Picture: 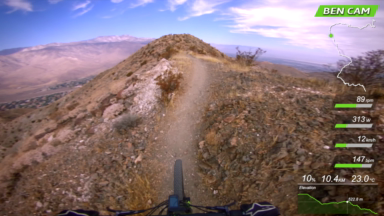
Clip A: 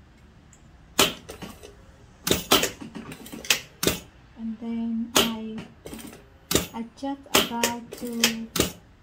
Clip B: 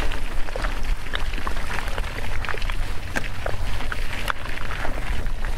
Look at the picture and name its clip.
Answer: B